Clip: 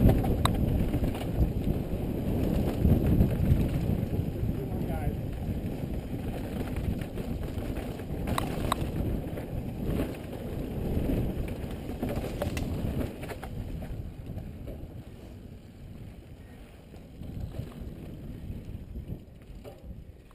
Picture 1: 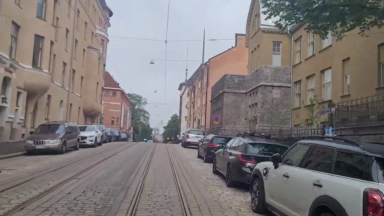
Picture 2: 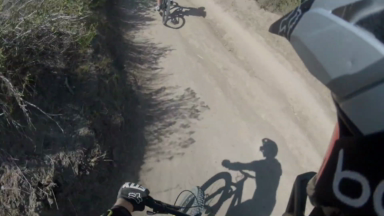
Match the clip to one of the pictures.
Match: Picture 2